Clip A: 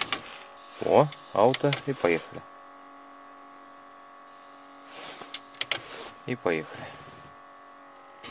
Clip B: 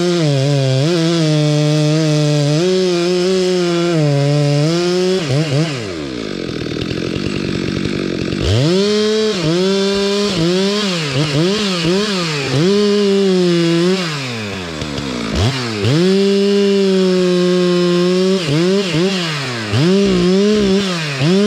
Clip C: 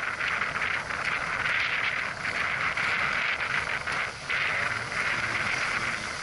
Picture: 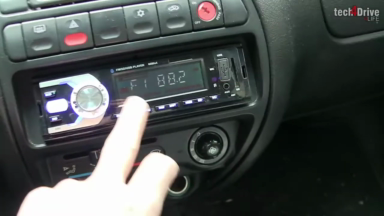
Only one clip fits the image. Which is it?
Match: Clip A